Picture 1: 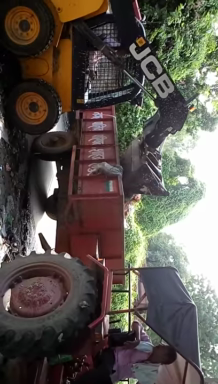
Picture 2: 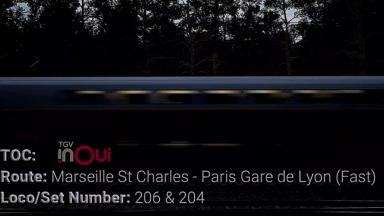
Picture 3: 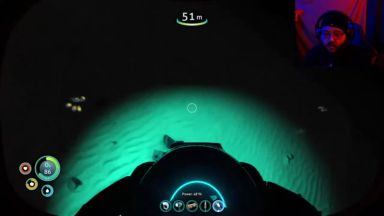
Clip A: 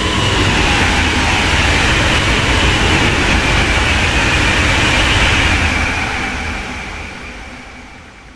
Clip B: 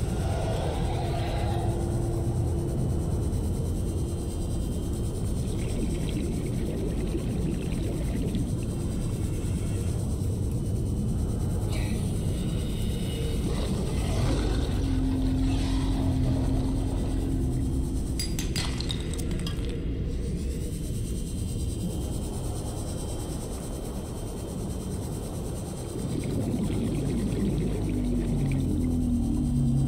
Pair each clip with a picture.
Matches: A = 2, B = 3